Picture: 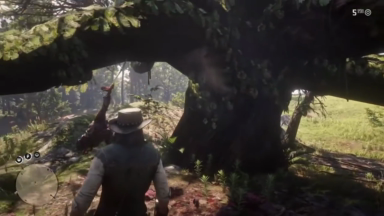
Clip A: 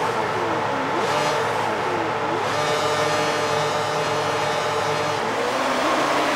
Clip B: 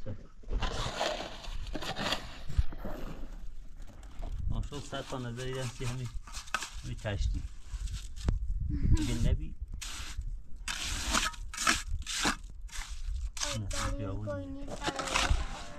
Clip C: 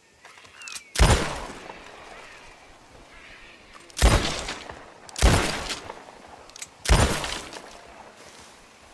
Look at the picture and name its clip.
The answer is C